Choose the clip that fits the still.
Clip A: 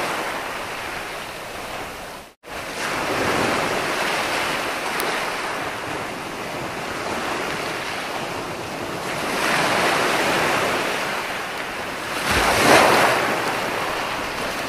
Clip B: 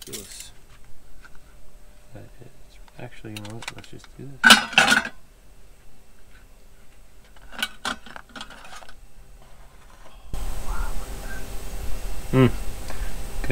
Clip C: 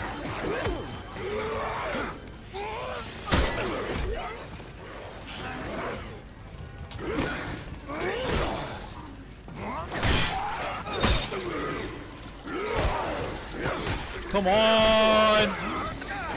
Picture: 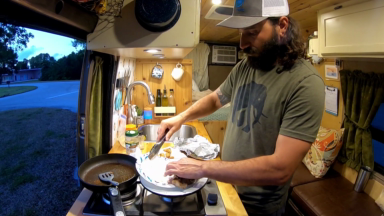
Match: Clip B